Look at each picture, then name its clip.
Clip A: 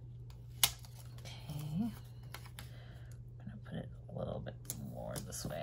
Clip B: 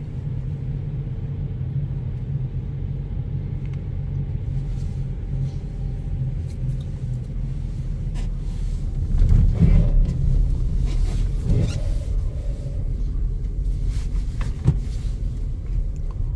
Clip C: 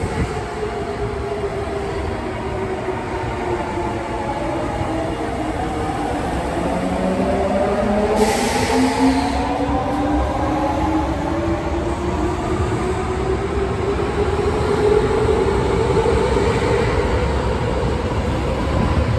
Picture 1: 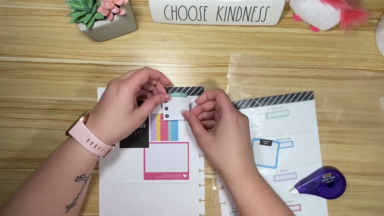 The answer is A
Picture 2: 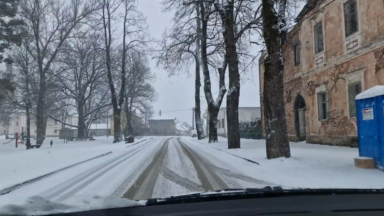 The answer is B